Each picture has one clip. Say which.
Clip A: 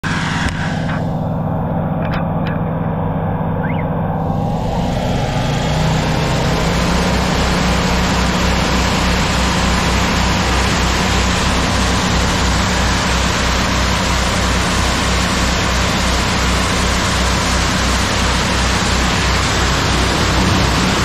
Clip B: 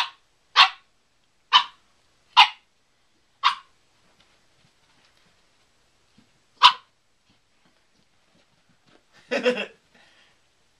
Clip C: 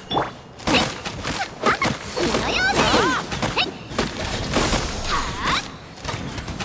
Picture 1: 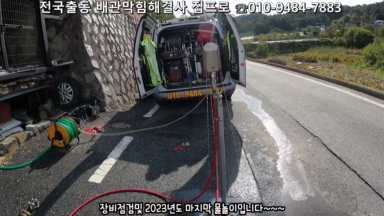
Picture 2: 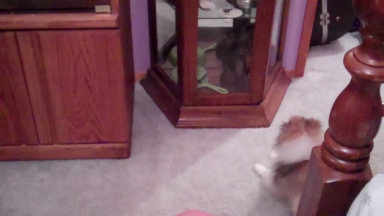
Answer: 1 A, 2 B